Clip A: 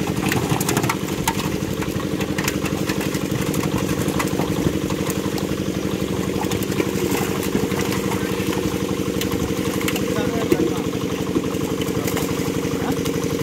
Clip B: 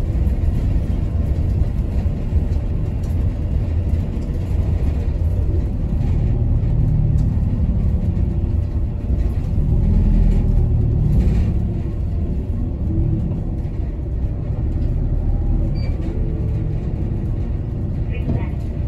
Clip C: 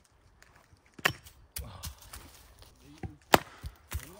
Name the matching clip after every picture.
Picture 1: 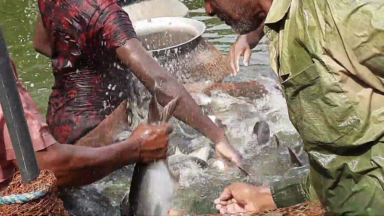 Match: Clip A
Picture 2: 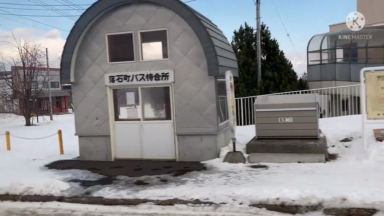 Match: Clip B